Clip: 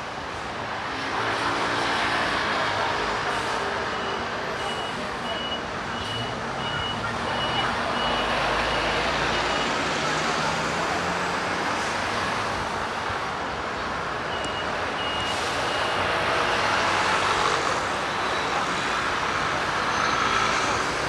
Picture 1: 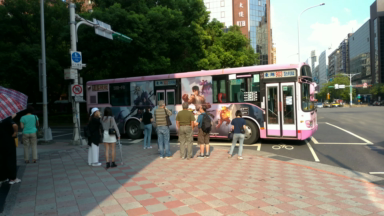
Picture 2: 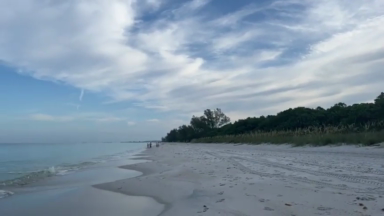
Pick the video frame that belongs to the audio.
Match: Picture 1